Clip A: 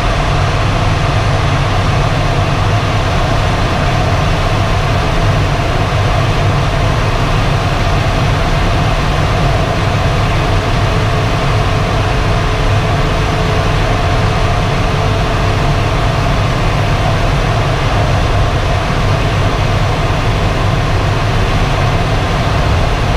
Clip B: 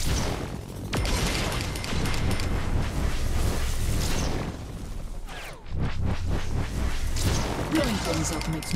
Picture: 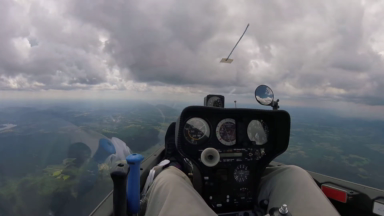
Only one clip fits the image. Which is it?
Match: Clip A